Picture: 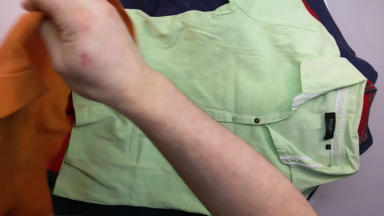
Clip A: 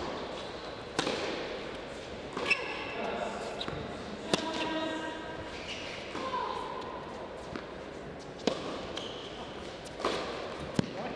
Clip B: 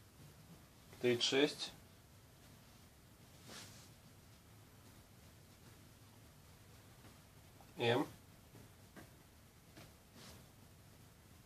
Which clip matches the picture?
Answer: B